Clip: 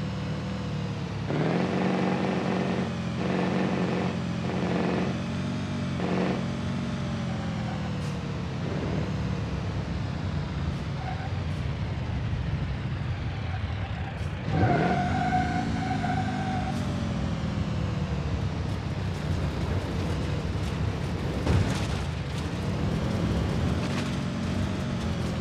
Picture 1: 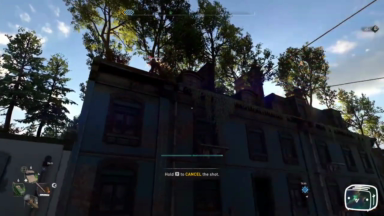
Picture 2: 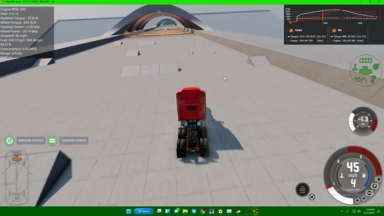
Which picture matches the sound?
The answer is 2